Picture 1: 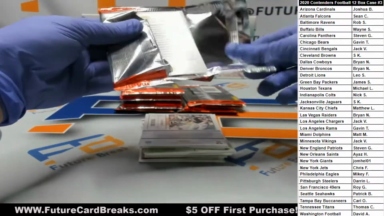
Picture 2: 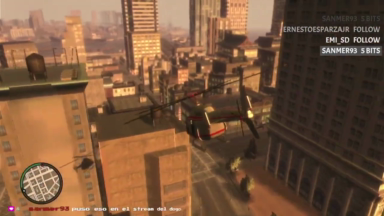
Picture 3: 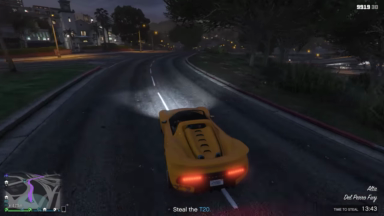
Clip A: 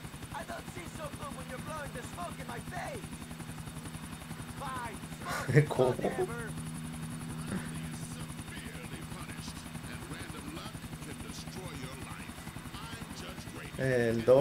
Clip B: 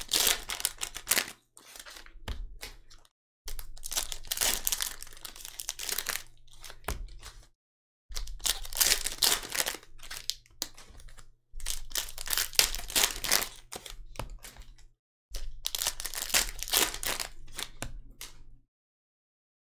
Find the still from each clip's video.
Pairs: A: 2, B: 1